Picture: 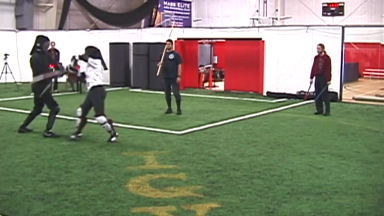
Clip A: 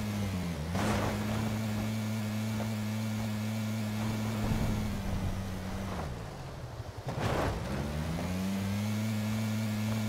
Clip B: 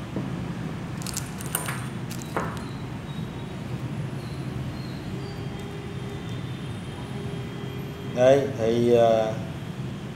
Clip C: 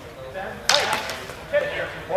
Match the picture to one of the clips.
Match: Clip C